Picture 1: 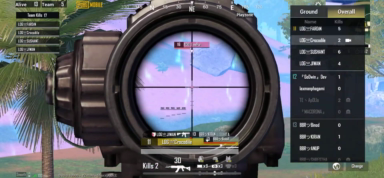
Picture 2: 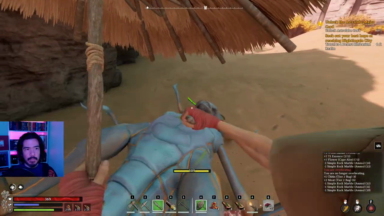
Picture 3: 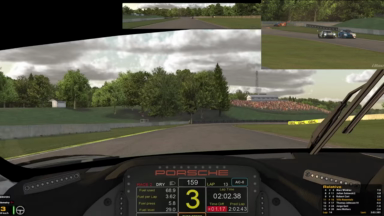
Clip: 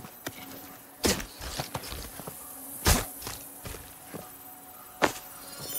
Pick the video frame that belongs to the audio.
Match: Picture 2